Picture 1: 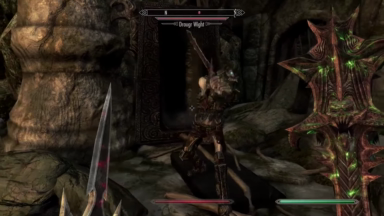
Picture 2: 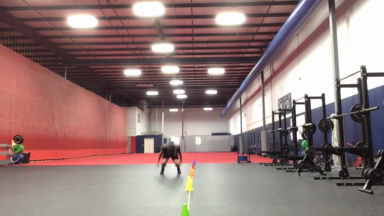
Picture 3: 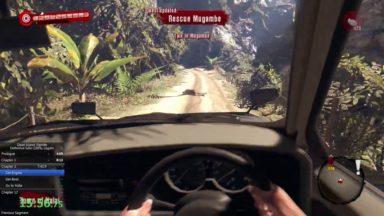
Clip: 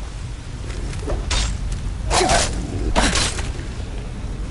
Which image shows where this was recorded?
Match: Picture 1